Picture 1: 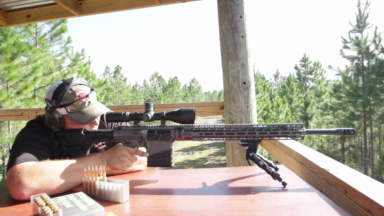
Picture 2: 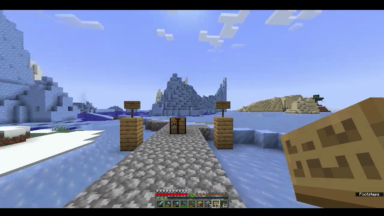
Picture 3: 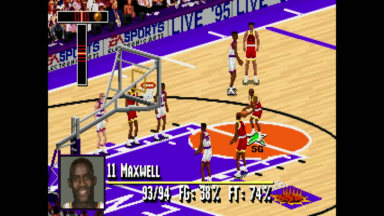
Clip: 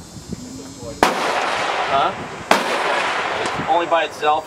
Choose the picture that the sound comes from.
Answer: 1